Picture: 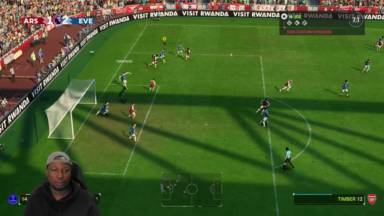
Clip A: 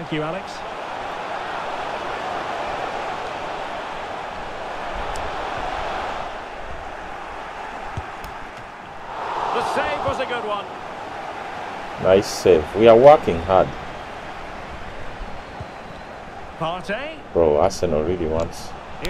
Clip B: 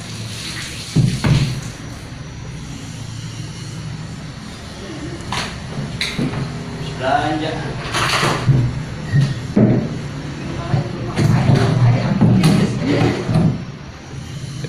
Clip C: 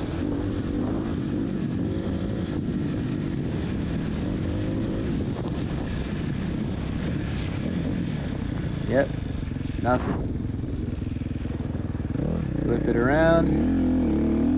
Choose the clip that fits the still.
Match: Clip A